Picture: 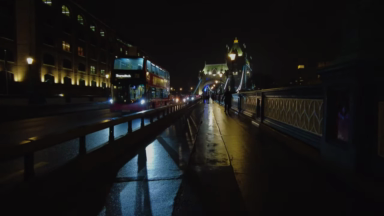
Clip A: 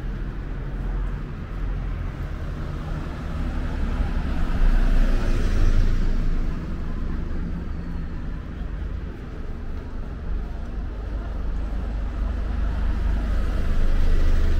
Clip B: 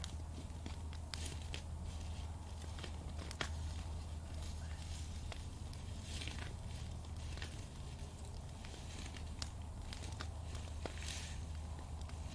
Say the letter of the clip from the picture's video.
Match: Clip A